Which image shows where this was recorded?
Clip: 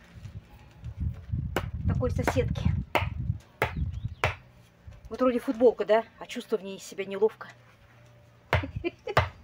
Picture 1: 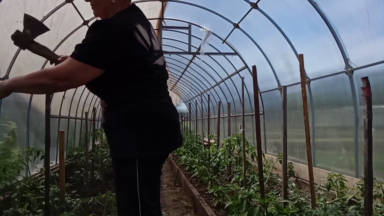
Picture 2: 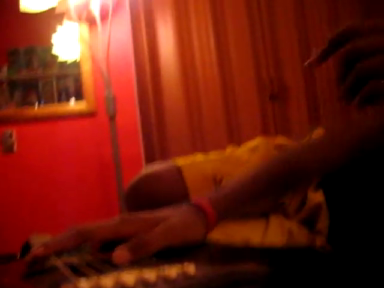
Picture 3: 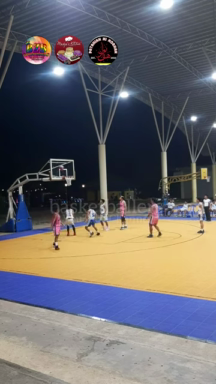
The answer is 1